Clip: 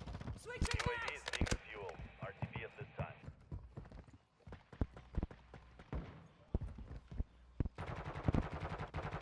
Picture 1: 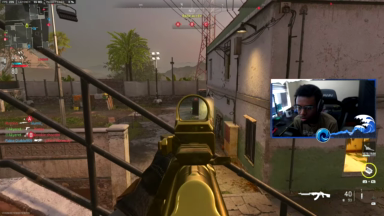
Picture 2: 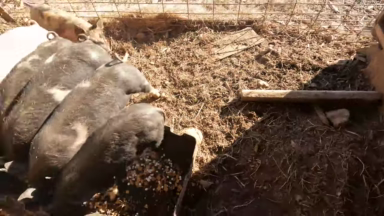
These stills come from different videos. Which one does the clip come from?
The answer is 1